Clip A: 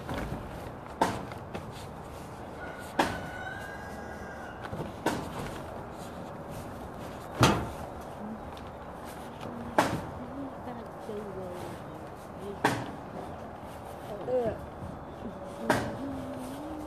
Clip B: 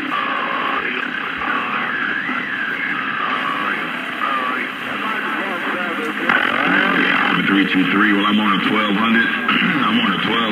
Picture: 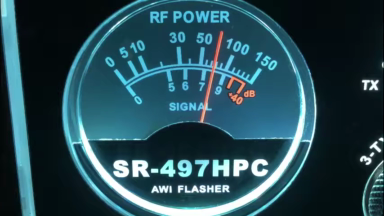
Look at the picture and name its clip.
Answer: B